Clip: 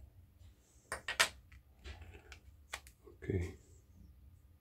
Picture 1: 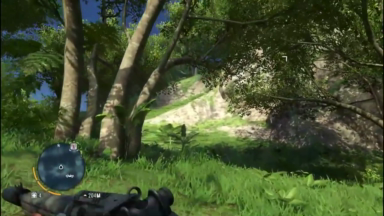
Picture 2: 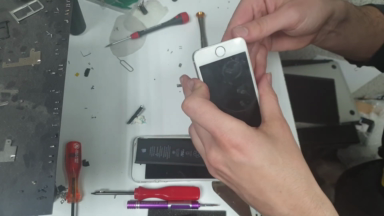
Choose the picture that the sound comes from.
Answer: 2